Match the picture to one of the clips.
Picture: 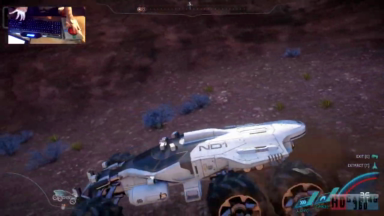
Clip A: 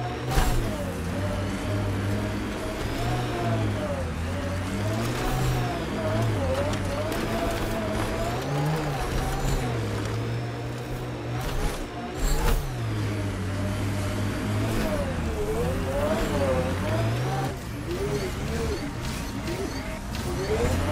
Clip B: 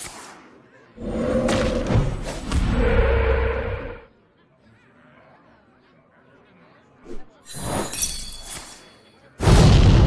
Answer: A